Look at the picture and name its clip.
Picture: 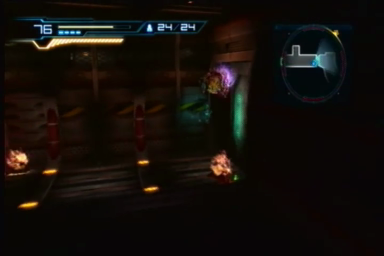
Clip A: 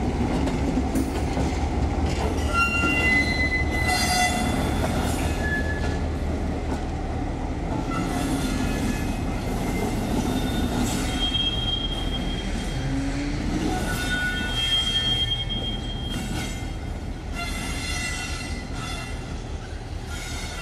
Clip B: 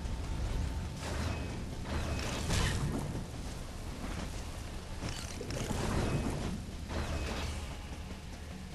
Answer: B